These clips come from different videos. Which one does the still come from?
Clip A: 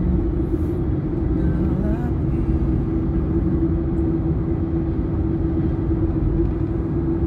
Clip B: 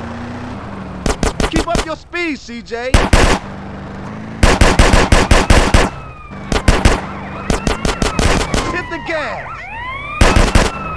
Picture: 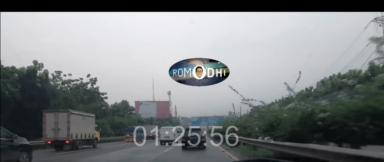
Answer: A